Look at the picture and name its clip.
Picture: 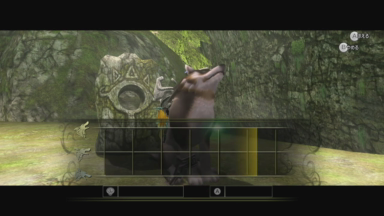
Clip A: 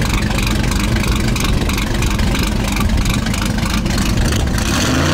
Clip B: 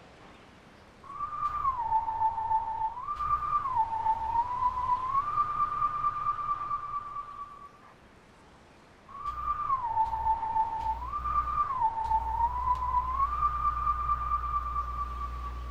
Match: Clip B